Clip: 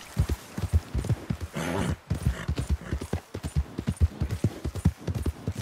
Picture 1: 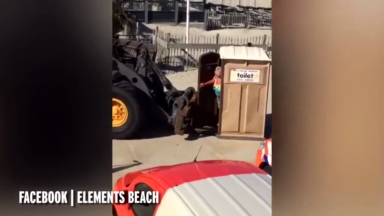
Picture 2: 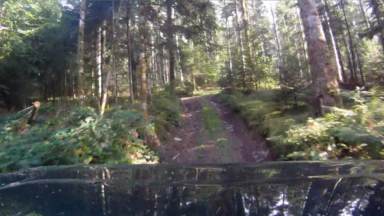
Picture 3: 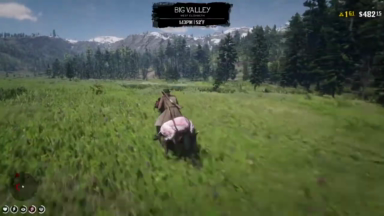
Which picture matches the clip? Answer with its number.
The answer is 3